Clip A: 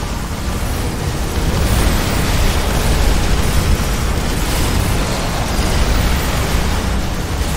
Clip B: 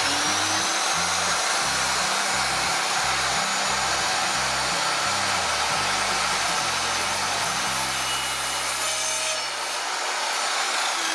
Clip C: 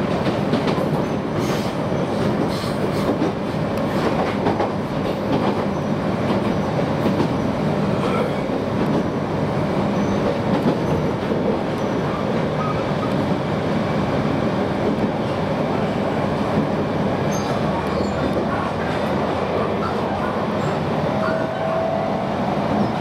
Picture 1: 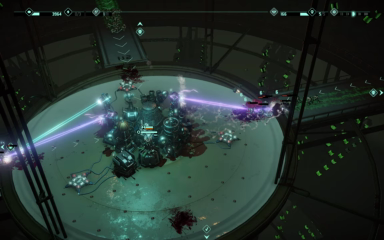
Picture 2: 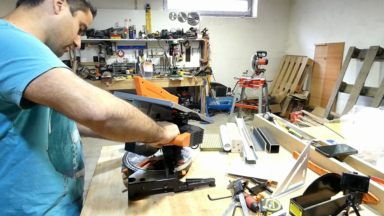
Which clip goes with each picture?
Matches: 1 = A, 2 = B